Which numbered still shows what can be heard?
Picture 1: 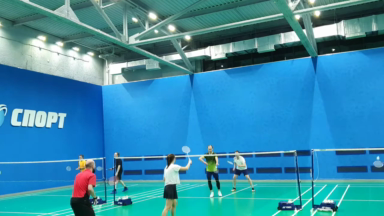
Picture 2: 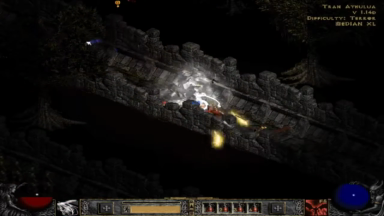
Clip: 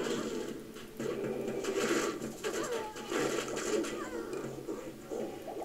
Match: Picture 2